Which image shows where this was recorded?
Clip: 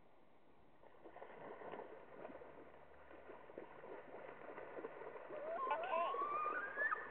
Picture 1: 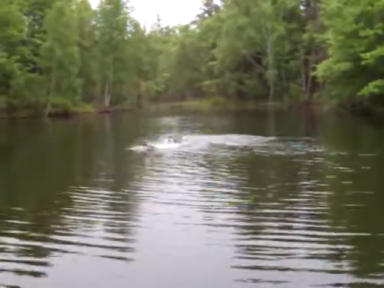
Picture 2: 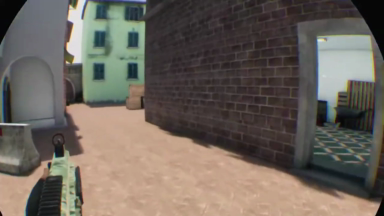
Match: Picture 1